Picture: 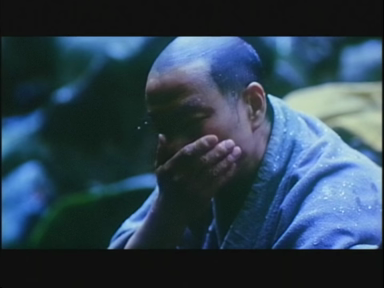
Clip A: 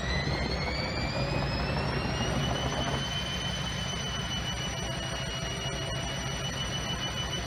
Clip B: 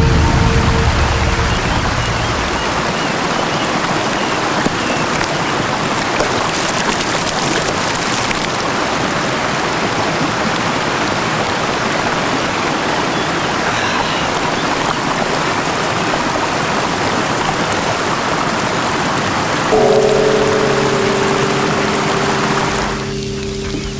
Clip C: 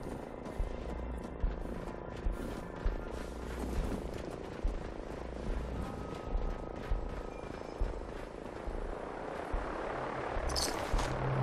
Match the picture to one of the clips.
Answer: B